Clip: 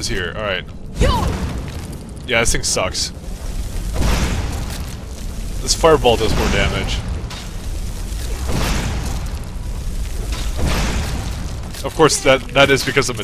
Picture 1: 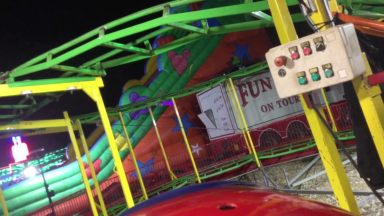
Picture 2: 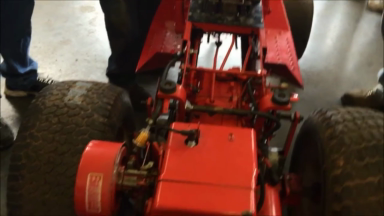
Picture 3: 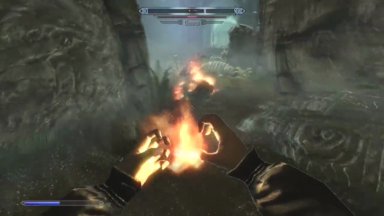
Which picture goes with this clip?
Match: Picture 3